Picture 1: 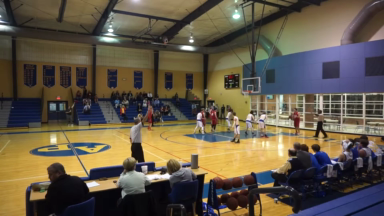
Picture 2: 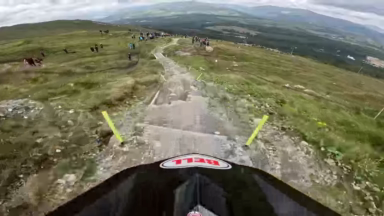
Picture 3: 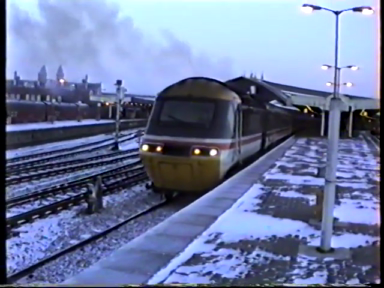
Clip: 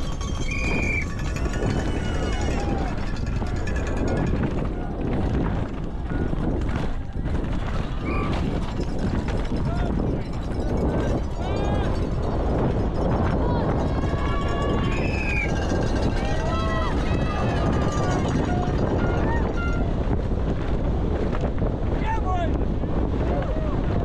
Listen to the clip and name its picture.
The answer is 2